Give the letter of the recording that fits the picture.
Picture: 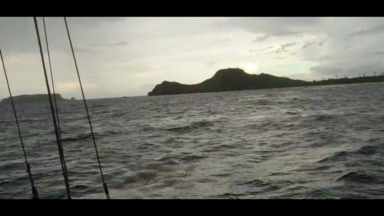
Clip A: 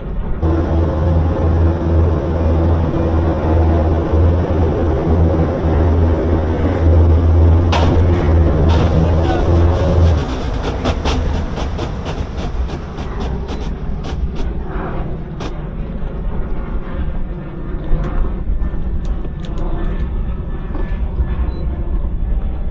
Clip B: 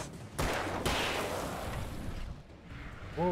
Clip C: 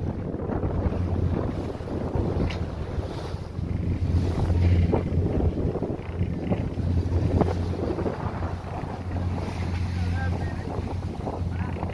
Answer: C